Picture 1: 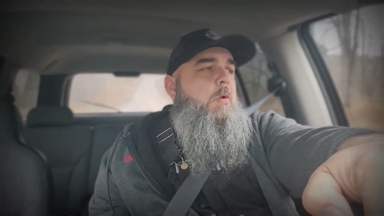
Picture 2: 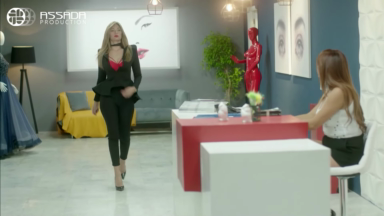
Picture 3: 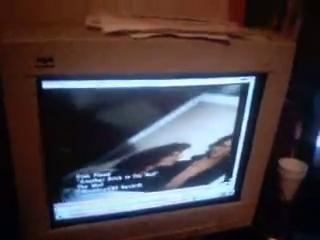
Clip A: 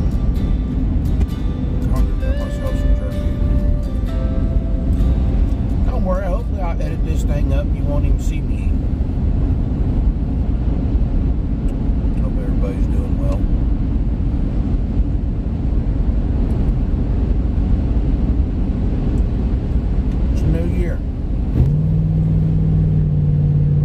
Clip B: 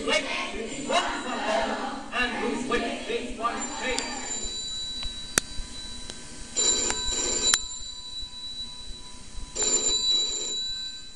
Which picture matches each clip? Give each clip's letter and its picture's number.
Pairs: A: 1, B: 3